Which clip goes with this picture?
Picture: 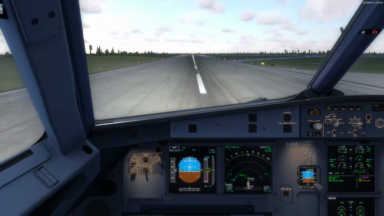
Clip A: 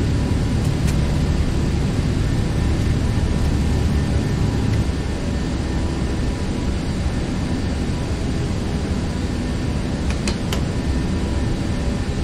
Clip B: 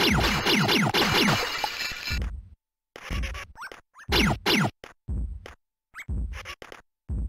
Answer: A